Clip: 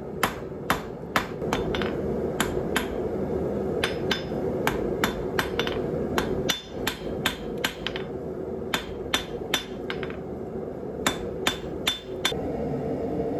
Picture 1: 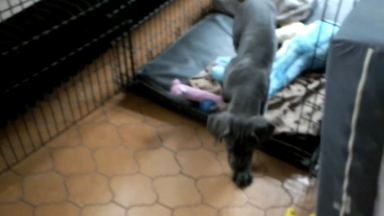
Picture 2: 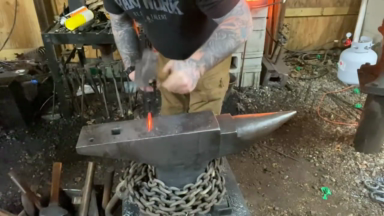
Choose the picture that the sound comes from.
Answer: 2